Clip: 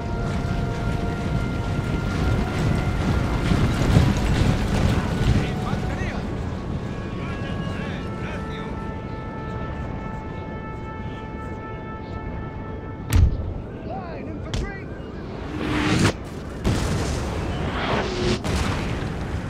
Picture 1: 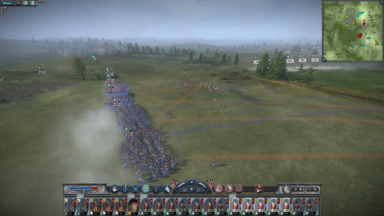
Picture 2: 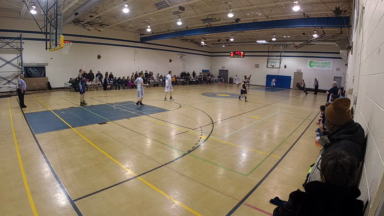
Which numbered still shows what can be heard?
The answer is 1